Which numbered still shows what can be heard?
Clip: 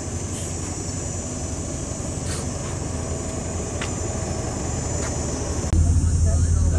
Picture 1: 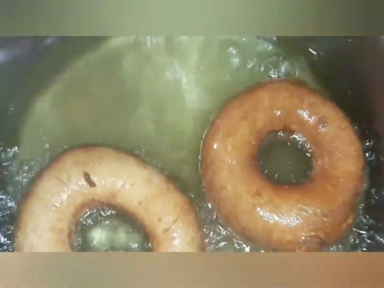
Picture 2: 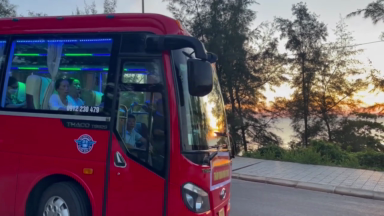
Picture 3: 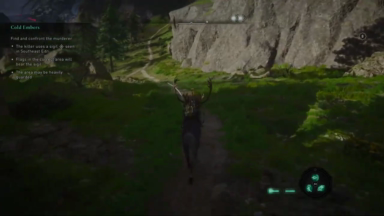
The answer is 2